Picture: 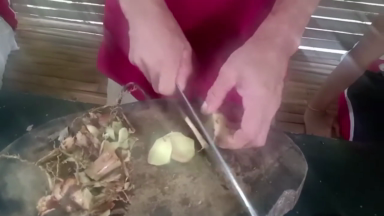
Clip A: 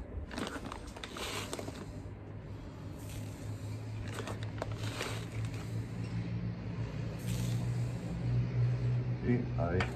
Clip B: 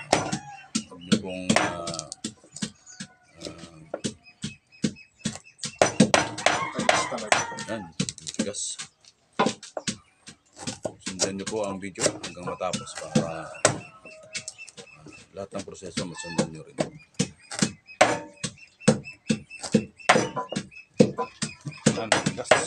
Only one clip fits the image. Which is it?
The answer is B